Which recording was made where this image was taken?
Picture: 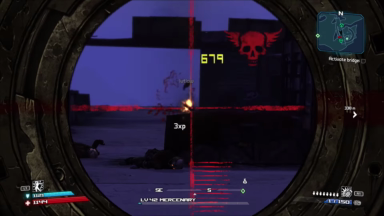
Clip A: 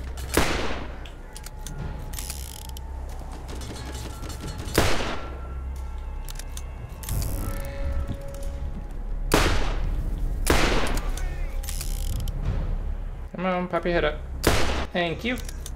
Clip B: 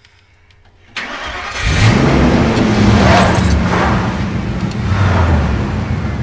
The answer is A